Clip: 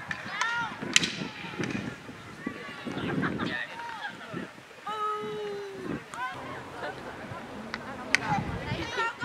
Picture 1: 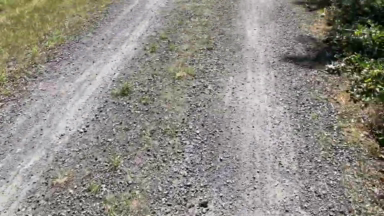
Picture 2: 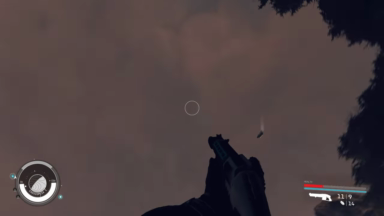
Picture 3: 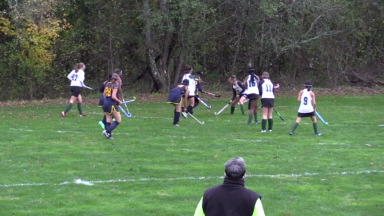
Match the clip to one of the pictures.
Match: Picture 3